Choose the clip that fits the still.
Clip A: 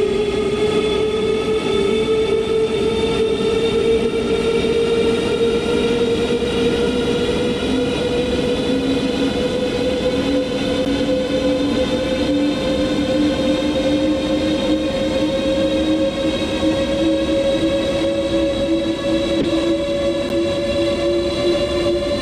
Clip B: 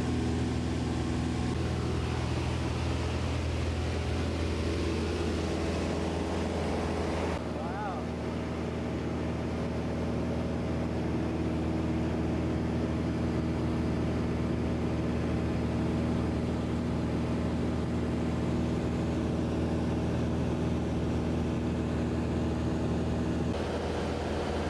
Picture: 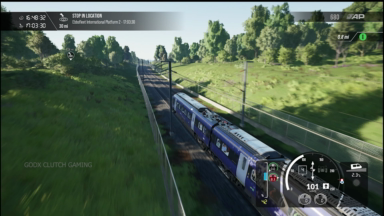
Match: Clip A